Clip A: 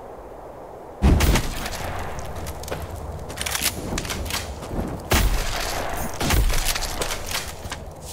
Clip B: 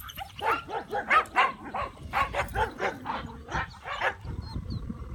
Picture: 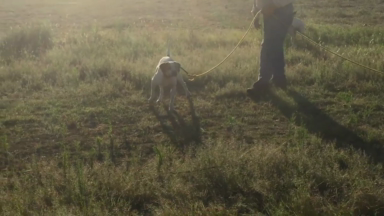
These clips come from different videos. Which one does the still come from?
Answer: B